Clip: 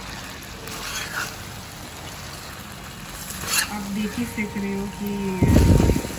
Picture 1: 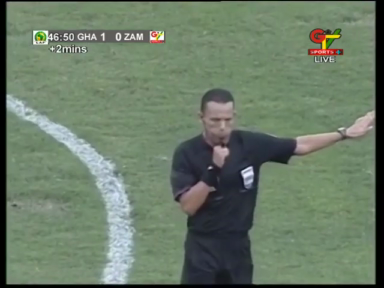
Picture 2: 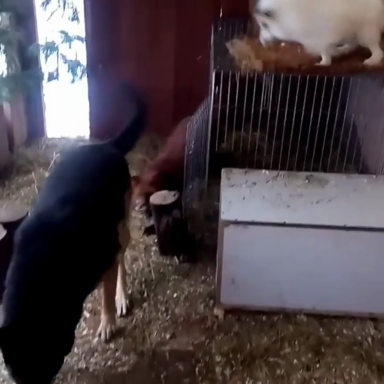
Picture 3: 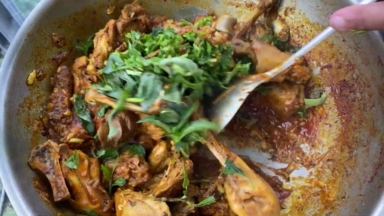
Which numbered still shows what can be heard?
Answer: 3